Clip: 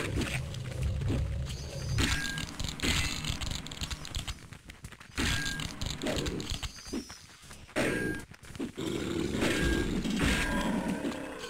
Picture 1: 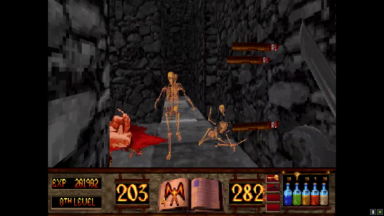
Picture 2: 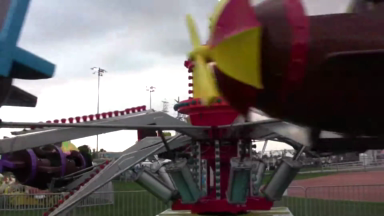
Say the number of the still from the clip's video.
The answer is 1